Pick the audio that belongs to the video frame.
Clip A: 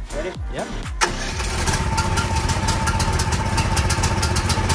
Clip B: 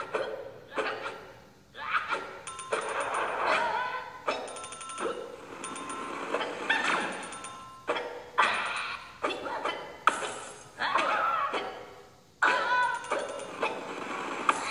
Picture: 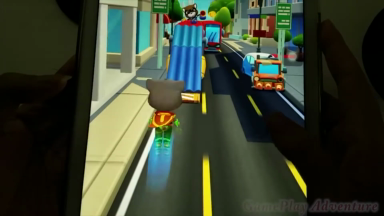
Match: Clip B